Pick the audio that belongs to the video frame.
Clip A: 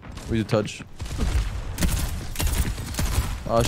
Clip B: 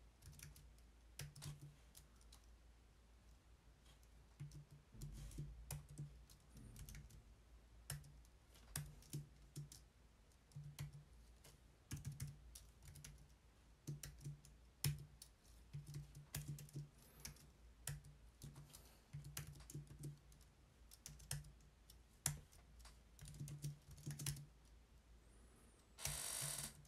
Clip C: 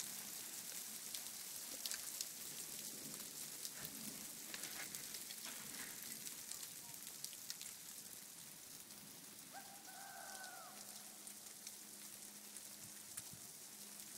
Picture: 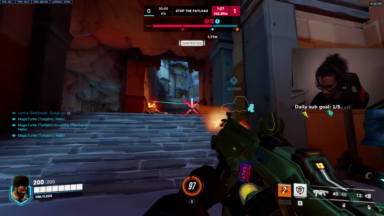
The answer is A